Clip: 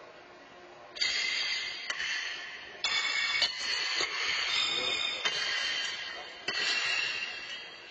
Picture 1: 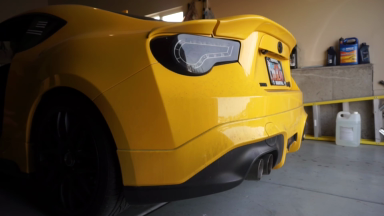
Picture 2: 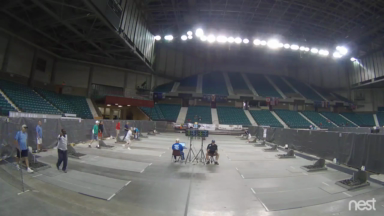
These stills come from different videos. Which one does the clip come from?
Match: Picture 2